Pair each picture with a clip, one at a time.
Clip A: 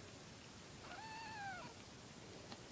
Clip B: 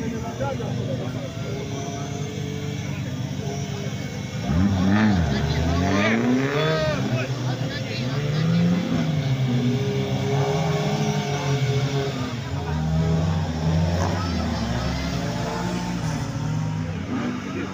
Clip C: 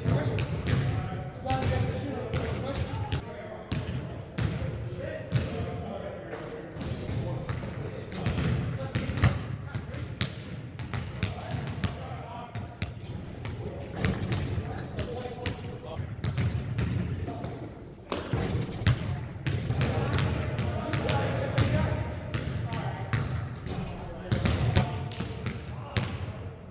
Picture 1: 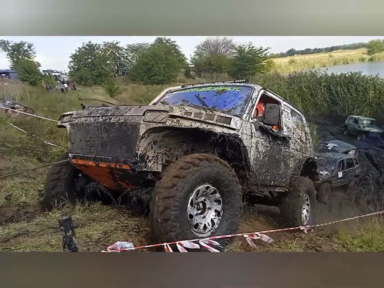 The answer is B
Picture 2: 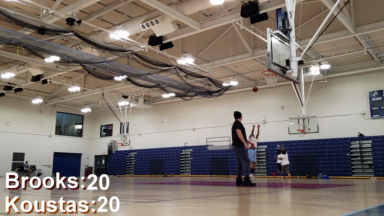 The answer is C